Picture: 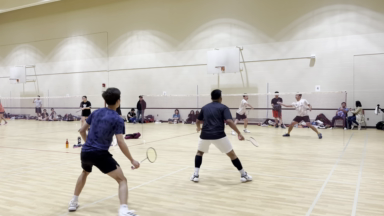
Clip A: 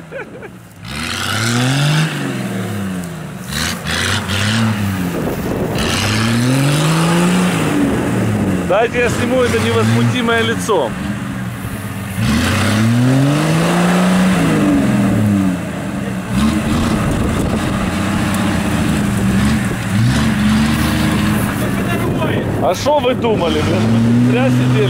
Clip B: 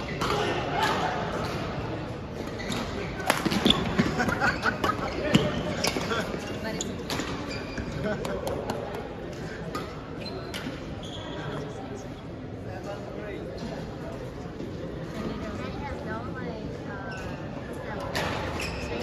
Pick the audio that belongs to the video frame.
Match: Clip B